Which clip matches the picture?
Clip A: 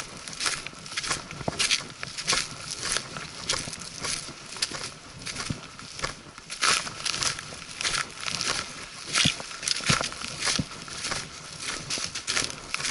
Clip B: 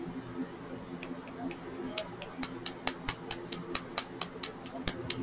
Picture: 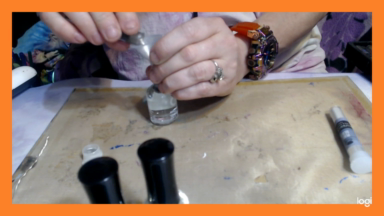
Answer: B